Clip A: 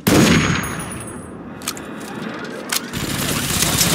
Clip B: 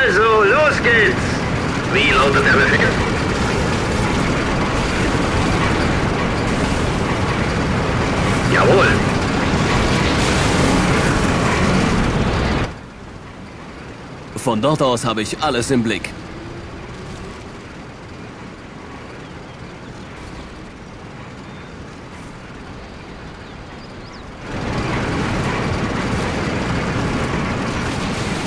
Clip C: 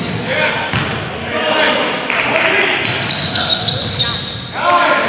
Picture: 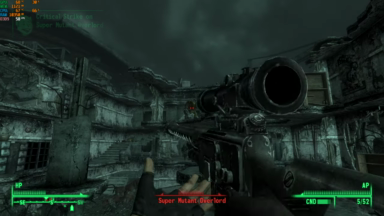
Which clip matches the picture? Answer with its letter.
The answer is A